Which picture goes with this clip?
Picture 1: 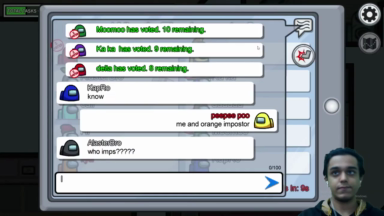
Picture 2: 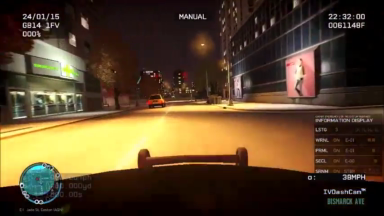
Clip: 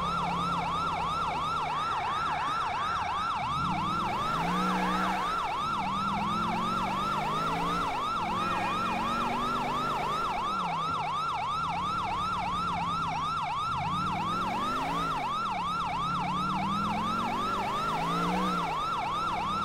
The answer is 2